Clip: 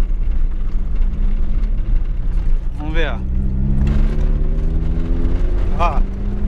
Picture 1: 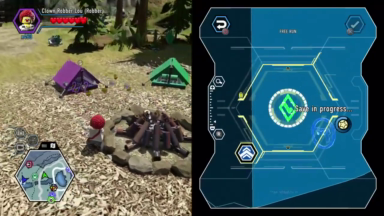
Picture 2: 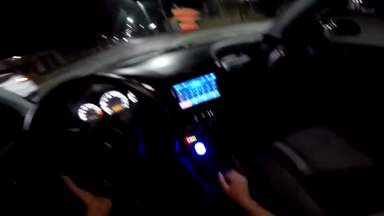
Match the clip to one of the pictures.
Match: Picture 2